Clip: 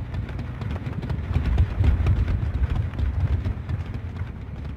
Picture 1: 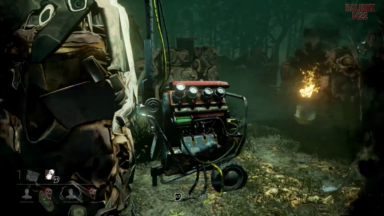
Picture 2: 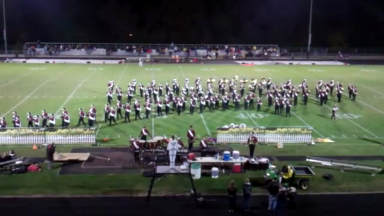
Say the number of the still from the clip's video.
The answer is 1